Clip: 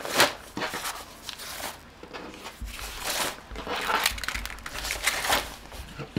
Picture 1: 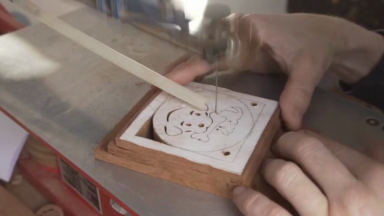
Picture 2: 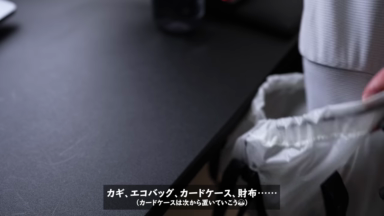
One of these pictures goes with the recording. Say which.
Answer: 2